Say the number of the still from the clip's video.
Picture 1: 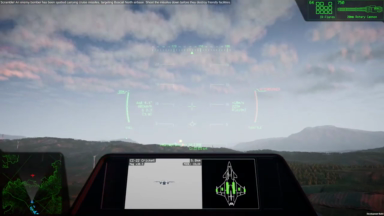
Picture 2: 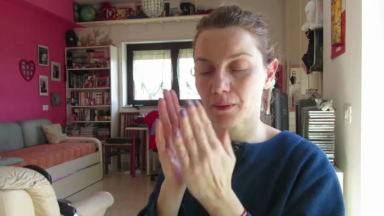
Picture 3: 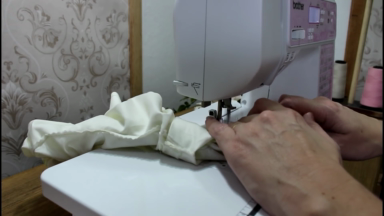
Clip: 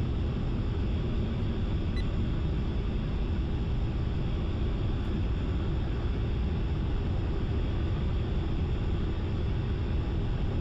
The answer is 1